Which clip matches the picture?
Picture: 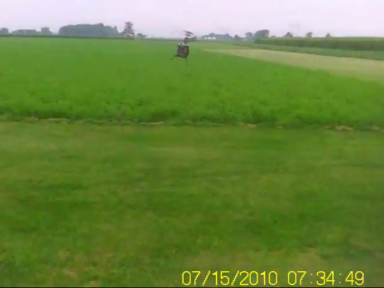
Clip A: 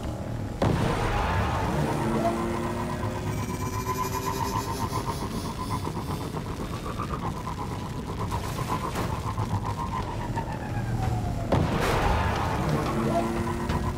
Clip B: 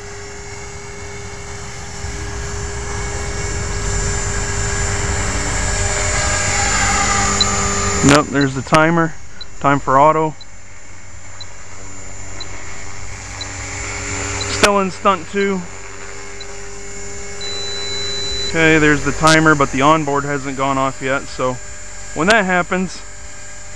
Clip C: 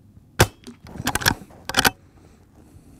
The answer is B